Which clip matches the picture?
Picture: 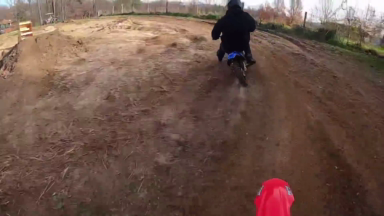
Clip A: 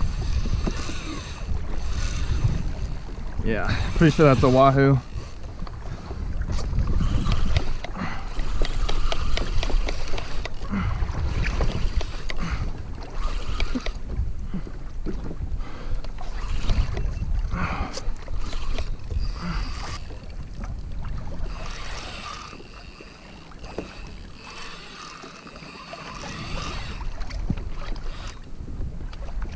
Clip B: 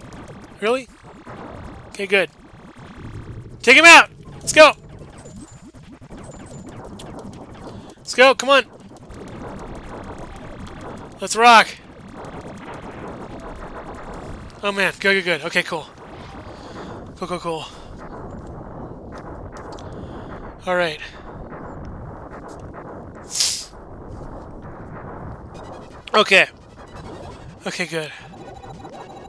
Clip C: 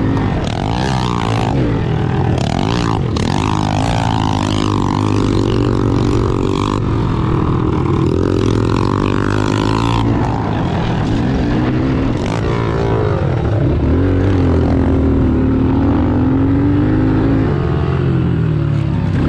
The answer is C